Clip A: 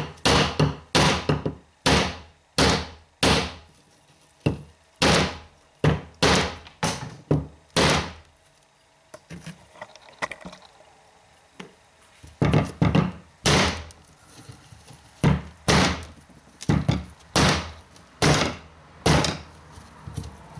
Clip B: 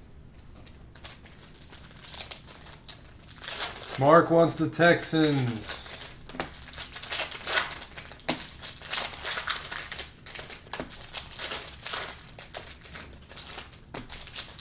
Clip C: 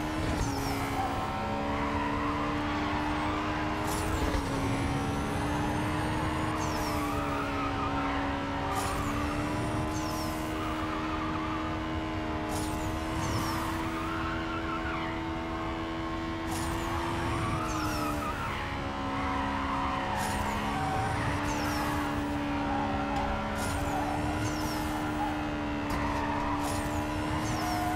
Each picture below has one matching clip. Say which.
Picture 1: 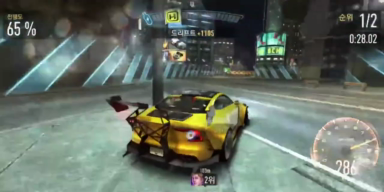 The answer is C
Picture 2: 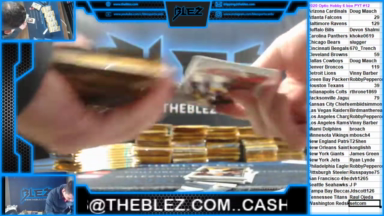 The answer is B